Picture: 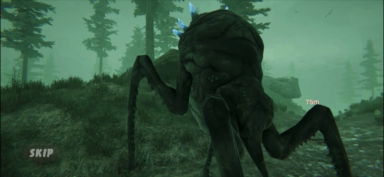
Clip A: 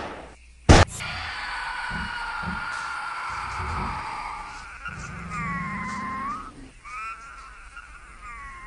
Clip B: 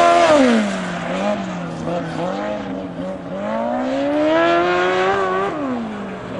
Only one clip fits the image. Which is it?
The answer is A